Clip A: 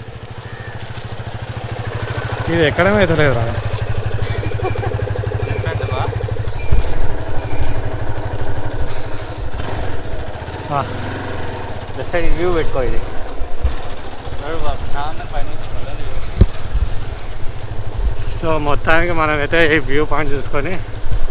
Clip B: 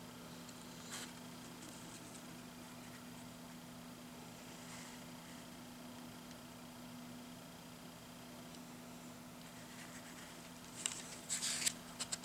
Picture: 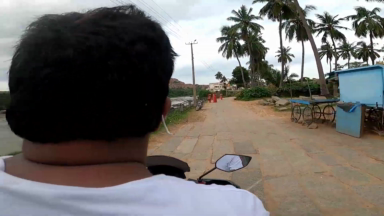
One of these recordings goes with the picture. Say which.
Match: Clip A